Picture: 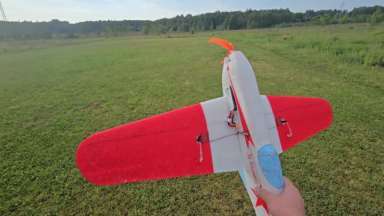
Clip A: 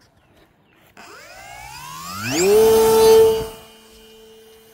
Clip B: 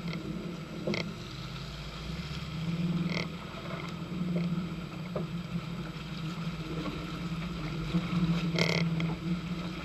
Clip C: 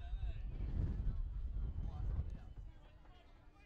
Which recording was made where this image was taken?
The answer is A